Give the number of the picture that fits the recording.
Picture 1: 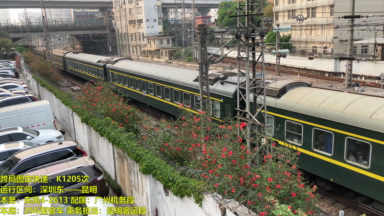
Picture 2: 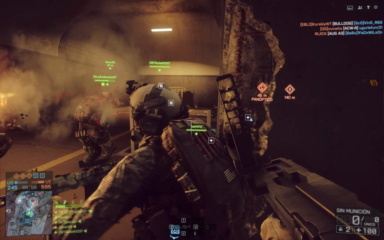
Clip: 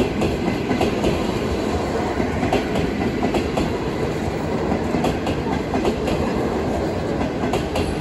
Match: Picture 1